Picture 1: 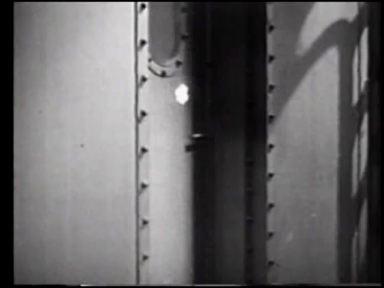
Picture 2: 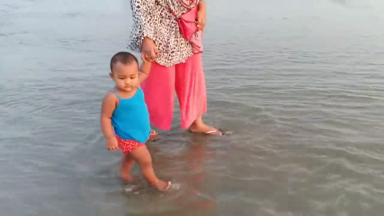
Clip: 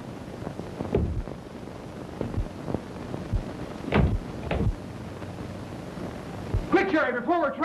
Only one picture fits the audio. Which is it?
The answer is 1